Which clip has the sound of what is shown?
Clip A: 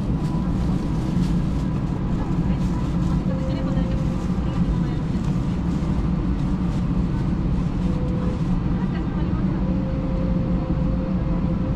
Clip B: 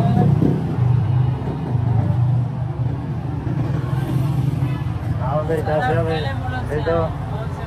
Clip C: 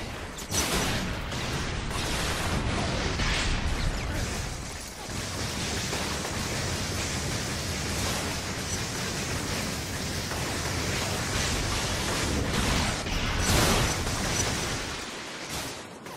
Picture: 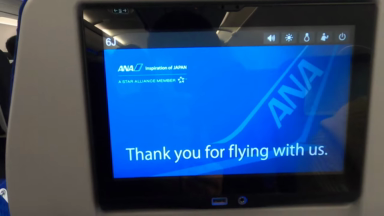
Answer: A